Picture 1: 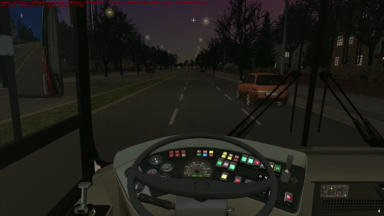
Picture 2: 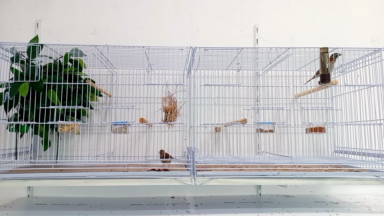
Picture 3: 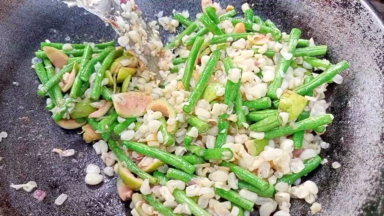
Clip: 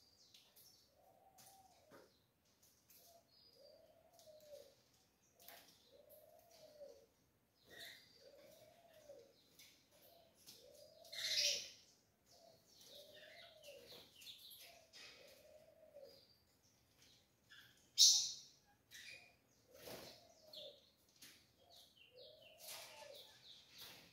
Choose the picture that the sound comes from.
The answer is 2